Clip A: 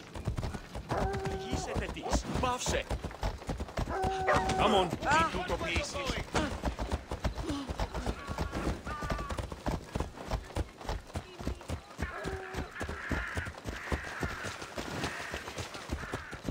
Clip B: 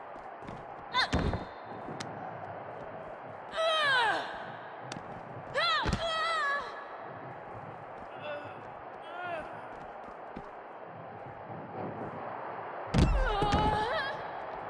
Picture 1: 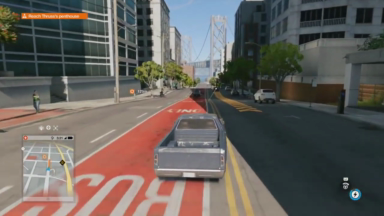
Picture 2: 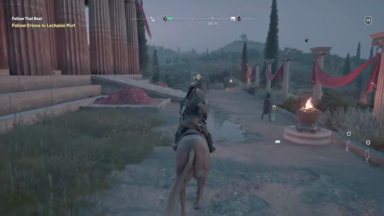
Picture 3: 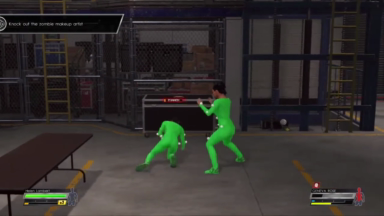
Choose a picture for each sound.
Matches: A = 2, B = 3